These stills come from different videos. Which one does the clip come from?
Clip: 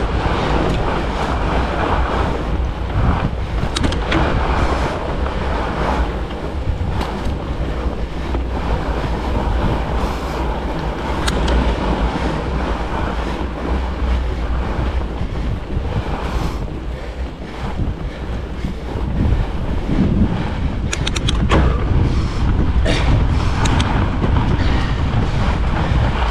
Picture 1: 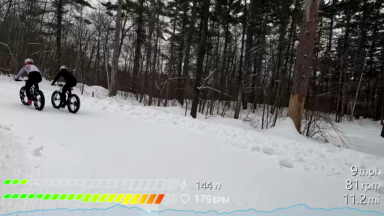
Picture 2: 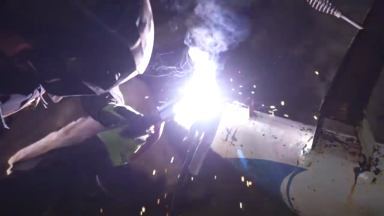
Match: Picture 1